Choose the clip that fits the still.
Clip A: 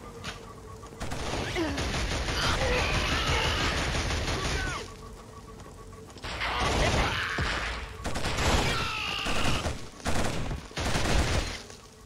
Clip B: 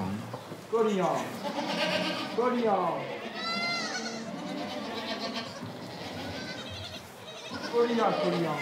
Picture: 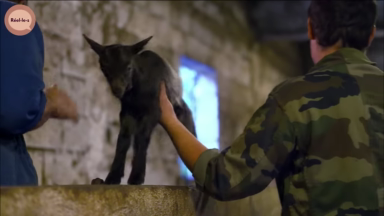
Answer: B